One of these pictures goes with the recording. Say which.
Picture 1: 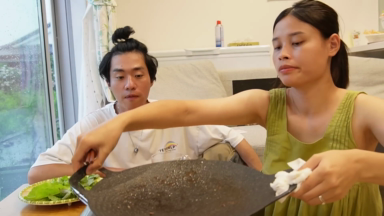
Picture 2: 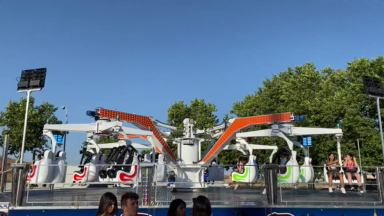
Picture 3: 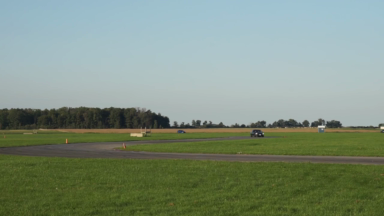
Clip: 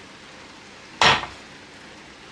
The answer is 1